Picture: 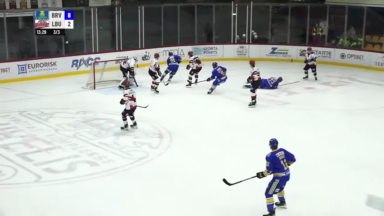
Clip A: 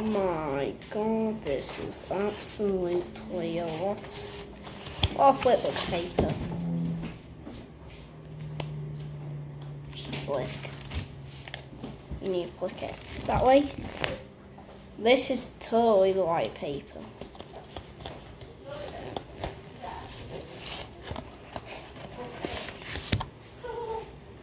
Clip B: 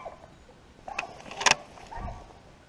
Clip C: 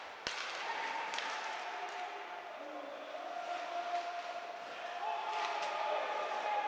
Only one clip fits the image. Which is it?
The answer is C